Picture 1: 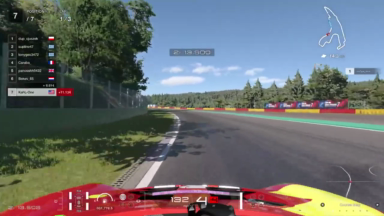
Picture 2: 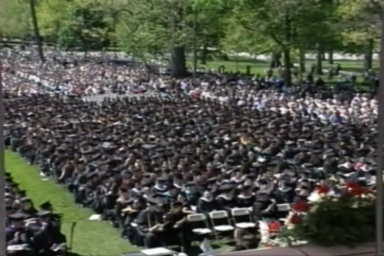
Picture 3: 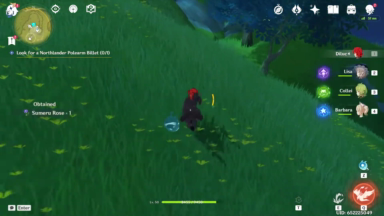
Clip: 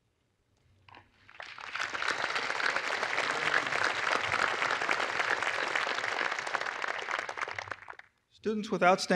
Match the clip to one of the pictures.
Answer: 2